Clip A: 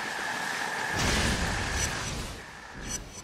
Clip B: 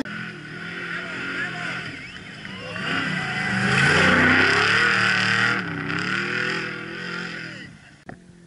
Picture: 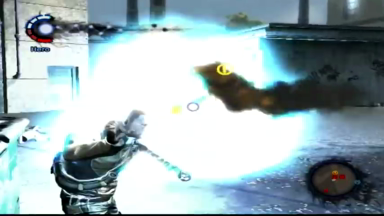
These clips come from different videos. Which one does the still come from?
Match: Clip A